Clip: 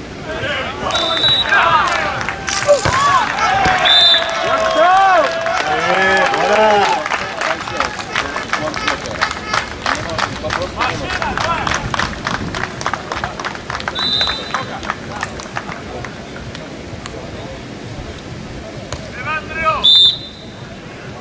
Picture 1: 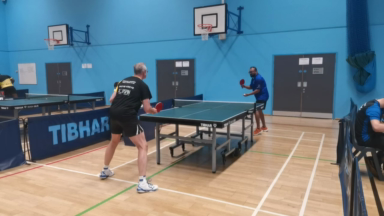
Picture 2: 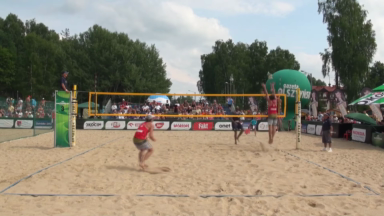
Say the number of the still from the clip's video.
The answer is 2